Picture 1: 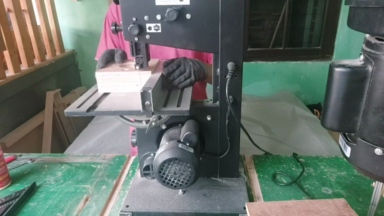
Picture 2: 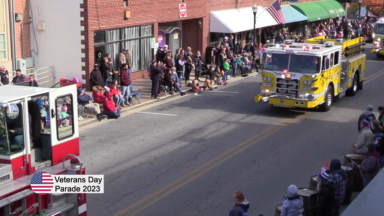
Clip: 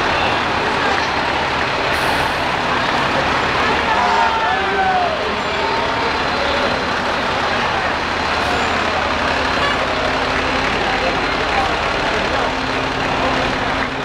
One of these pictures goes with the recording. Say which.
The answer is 2